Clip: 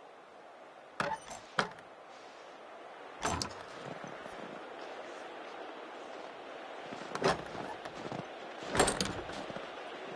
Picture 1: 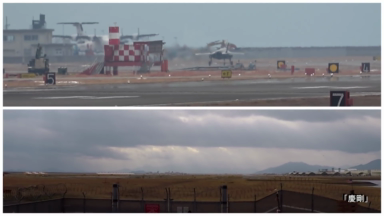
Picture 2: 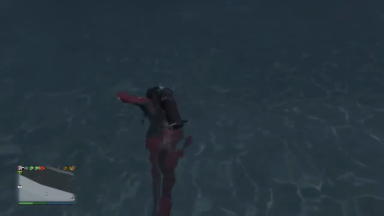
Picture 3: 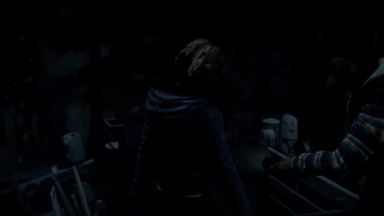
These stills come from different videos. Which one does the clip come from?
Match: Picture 3